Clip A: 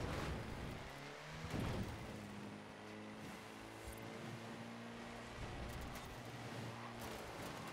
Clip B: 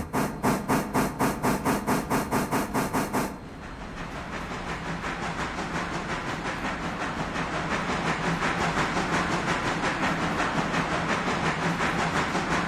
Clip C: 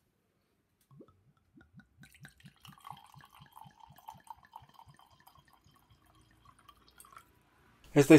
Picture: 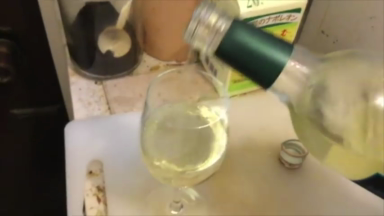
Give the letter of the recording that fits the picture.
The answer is C